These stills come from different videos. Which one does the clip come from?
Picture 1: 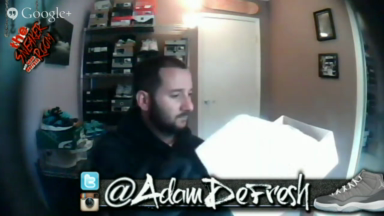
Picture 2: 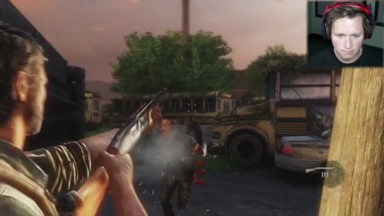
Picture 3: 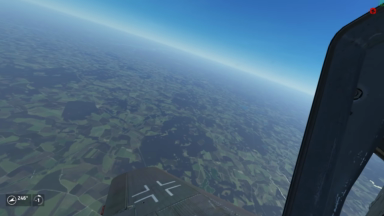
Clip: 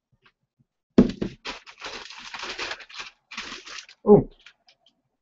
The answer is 1